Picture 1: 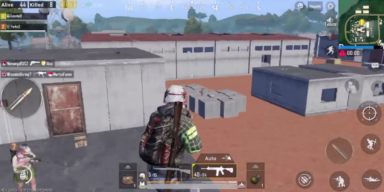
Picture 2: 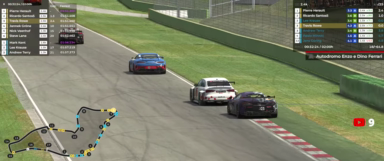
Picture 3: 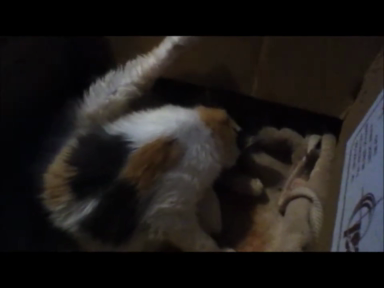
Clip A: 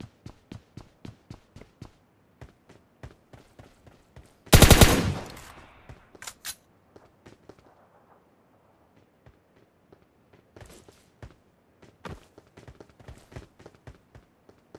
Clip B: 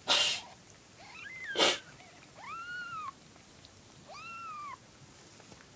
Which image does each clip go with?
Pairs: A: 1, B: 3